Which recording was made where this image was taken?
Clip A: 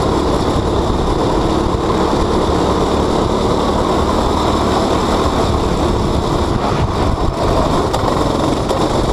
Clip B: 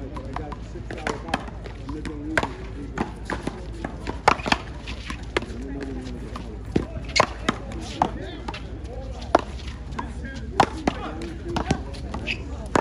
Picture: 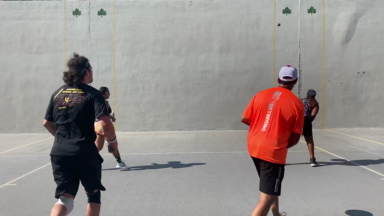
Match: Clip B